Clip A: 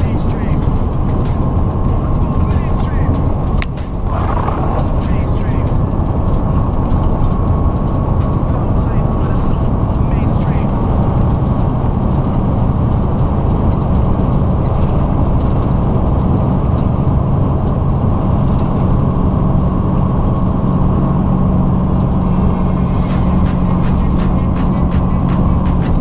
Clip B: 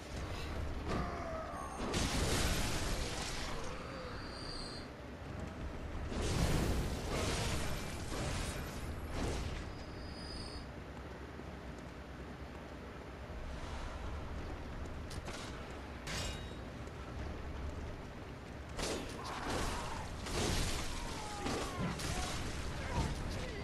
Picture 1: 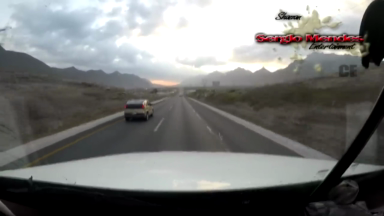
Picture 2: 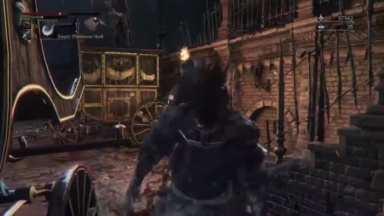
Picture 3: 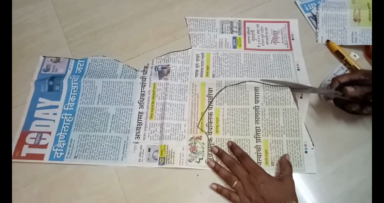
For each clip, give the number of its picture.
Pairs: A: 1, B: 2